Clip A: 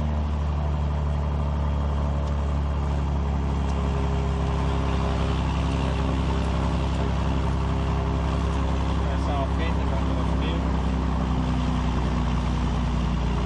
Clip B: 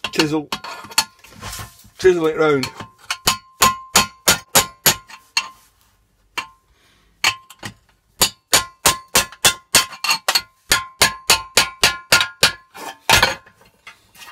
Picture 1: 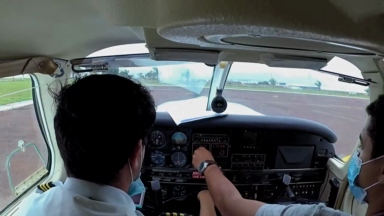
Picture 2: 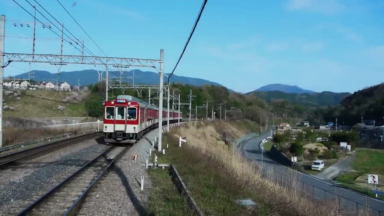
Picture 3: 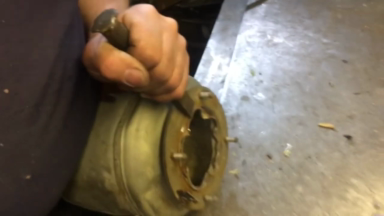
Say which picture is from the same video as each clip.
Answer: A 1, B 3